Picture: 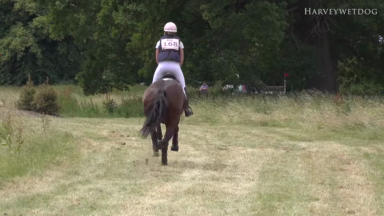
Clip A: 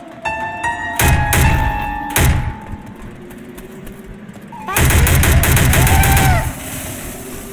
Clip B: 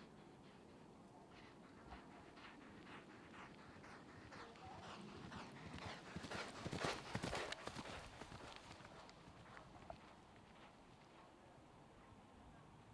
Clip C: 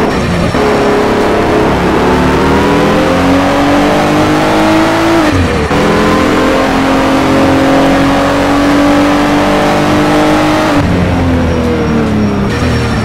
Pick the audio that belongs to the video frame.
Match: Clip B